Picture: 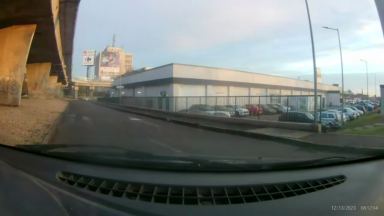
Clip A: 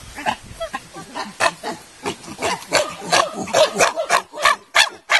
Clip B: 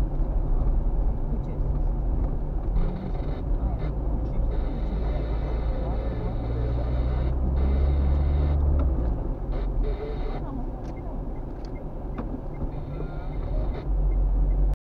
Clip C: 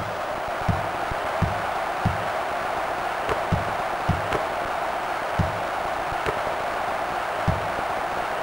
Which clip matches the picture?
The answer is B